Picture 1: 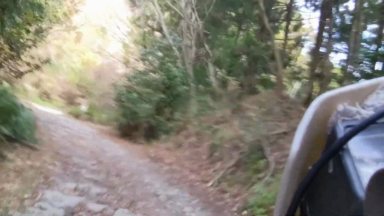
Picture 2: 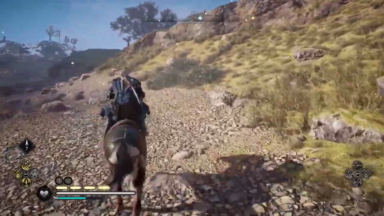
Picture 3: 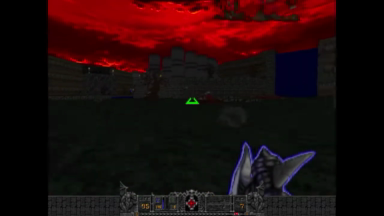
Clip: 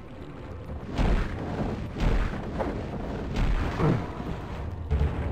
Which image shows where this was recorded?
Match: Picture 3